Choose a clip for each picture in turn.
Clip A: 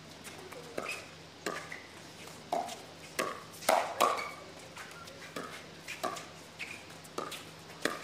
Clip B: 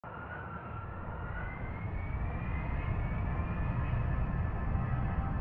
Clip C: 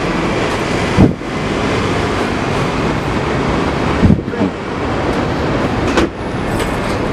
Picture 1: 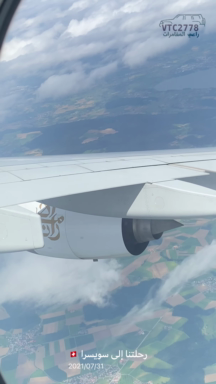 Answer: B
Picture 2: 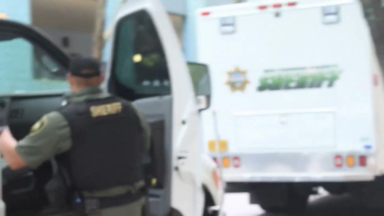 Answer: C